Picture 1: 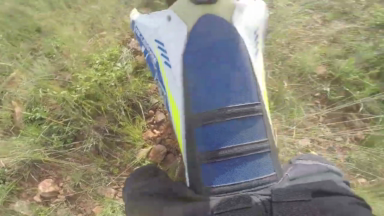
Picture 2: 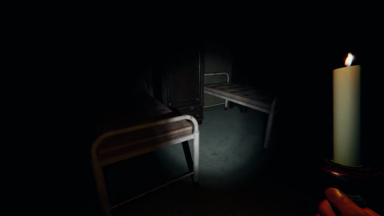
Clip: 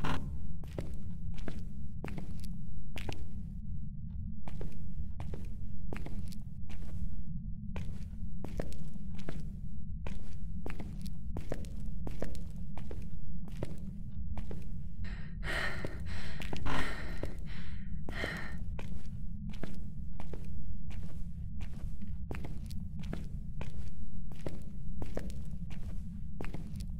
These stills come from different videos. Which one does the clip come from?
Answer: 2